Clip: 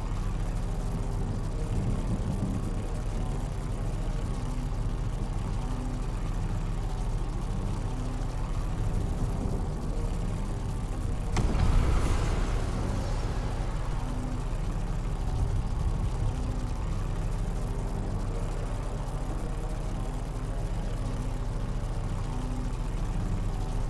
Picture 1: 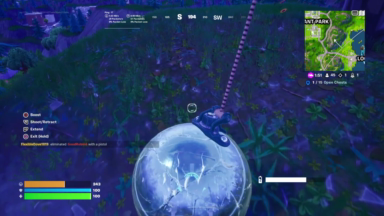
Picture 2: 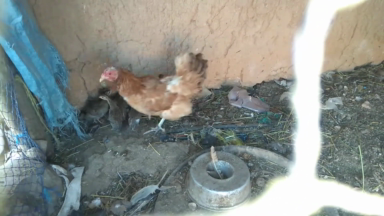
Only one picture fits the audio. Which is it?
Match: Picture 1